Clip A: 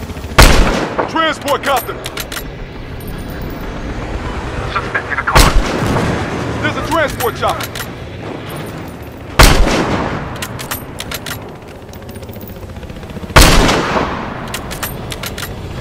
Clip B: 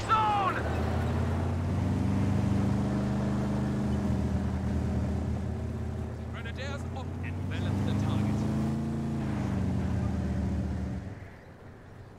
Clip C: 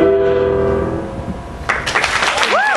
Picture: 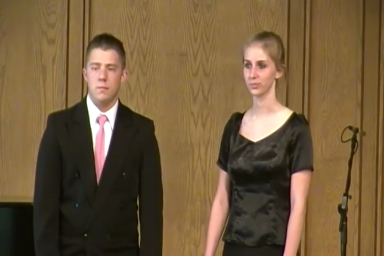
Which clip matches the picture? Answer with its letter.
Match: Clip C